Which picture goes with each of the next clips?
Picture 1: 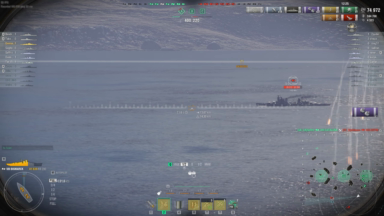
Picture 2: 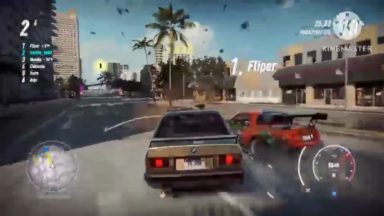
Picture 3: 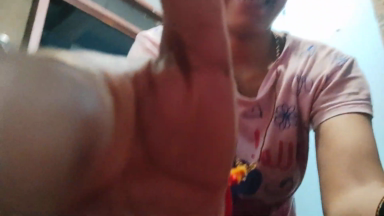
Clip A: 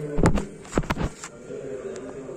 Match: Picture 3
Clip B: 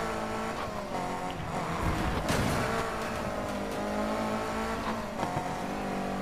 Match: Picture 2